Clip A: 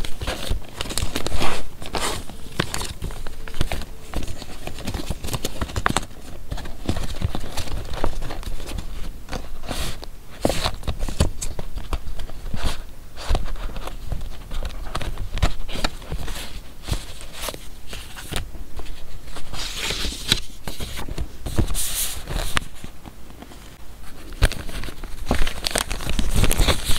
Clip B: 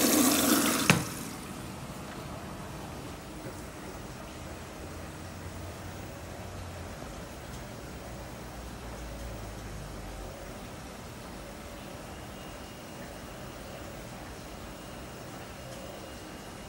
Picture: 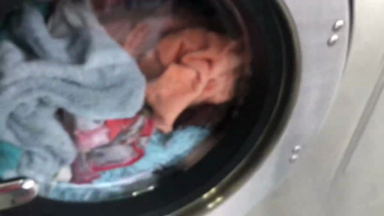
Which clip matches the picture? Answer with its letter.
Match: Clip B